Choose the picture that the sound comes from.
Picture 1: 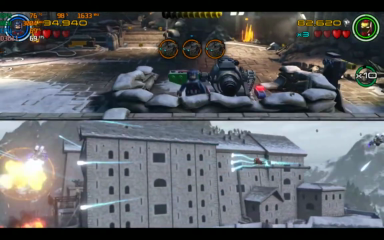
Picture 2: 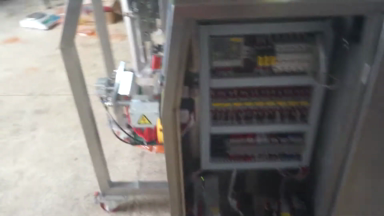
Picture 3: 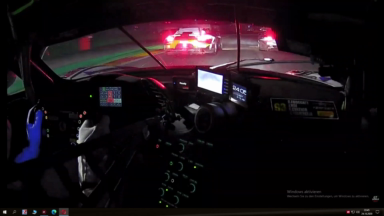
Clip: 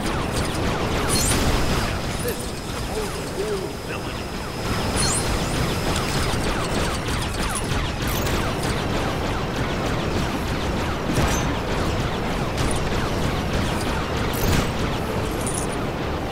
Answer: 1